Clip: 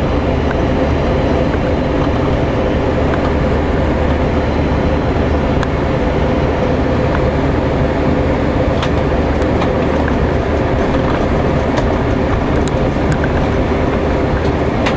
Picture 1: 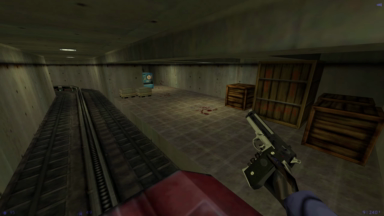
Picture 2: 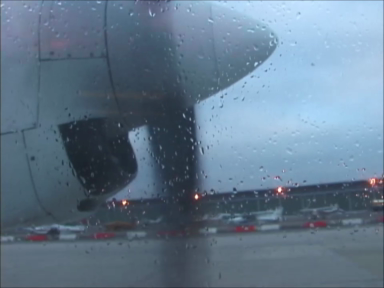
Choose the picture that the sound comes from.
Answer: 2